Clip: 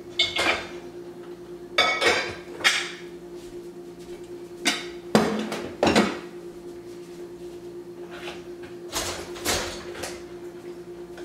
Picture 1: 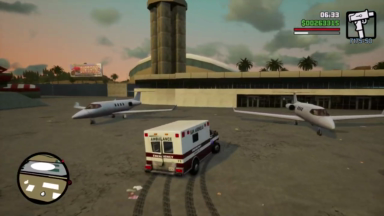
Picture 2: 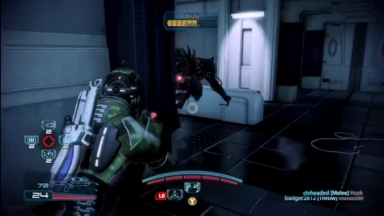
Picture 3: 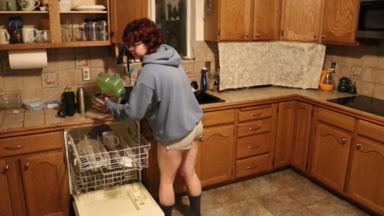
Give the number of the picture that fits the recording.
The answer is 3